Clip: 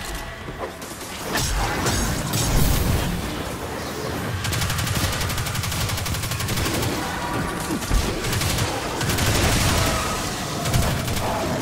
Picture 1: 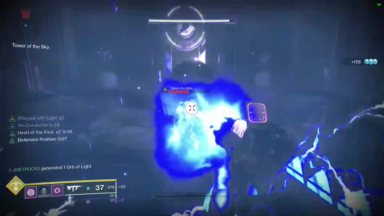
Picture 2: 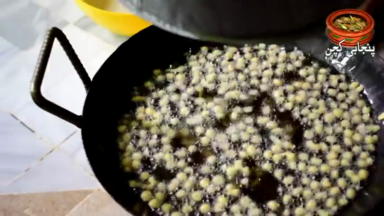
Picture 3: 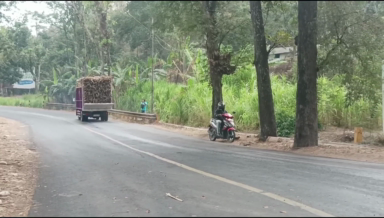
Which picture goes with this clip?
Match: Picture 1